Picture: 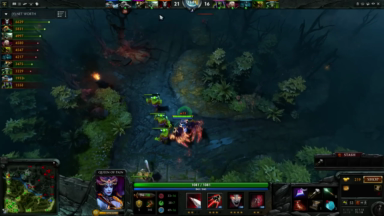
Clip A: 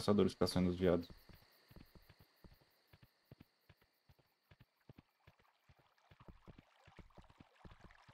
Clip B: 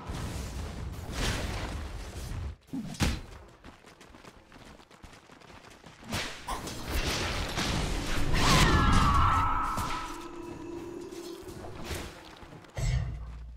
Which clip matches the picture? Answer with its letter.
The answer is B